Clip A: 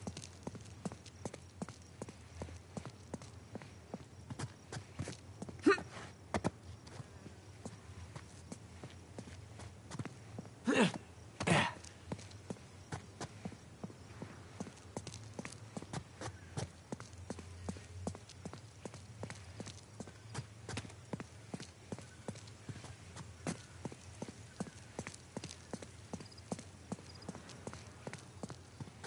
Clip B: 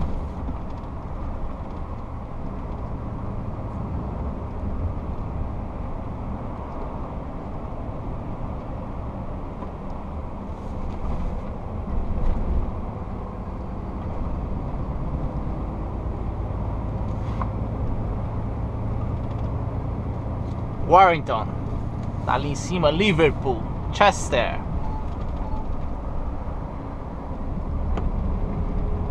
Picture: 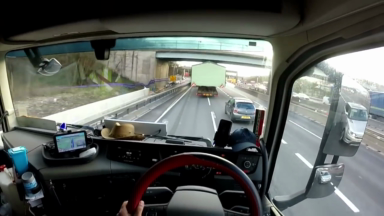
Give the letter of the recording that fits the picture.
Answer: B